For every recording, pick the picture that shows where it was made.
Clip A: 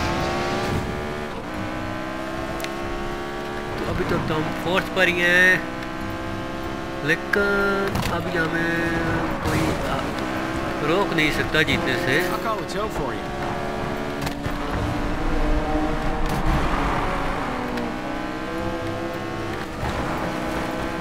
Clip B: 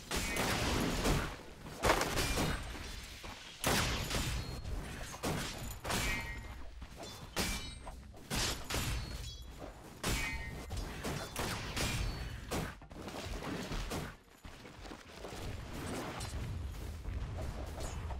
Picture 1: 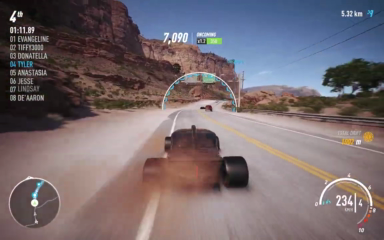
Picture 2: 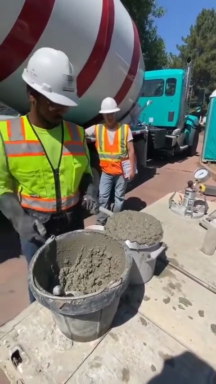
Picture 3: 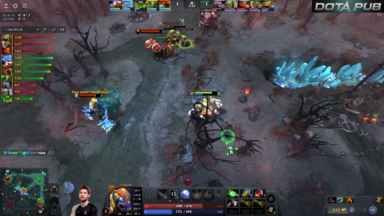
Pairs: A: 1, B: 3